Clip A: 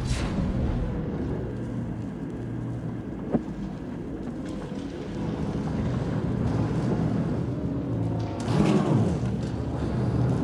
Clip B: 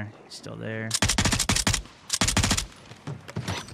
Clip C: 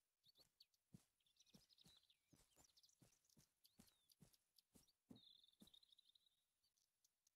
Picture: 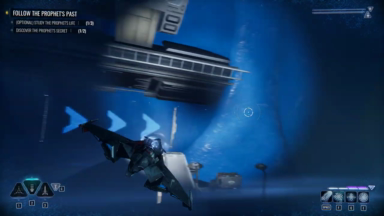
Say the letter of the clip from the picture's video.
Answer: A